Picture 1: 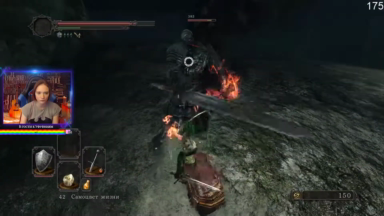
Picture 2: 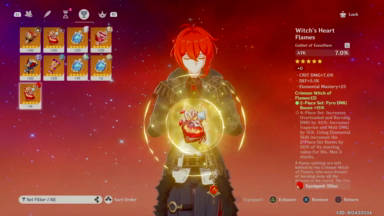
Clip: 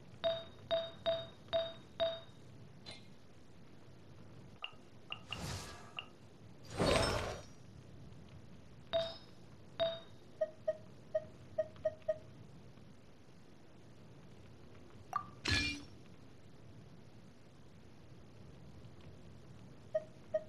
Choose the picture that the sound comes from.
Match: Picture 2